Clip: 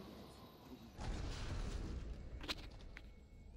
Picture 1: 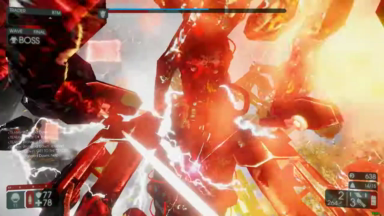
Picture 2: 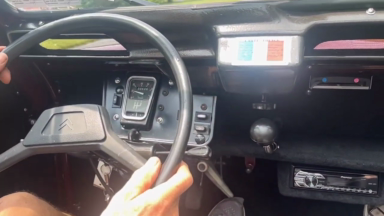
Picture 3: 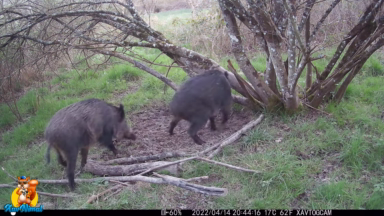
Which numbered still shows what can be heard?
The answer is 1